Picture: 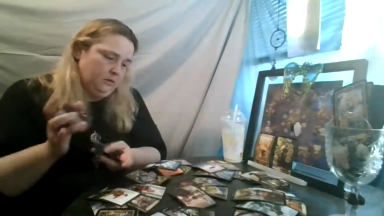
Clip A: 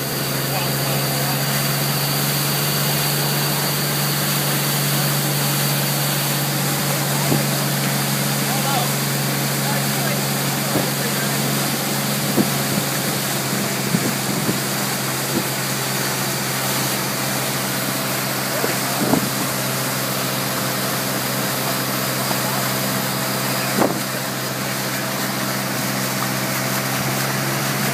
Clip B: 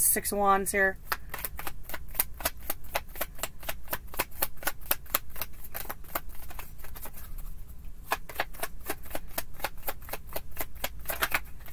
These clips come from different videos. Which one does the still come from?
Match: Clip B